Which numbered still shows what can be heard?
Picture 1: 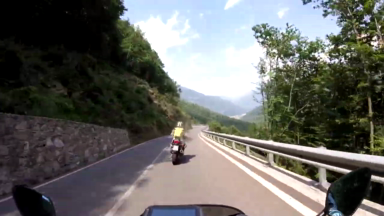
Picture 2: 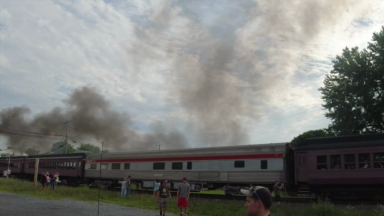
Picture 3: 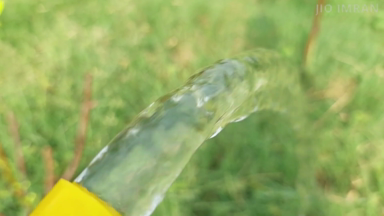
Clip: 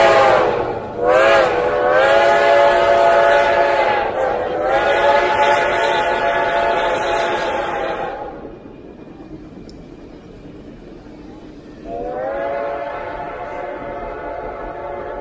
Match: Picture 2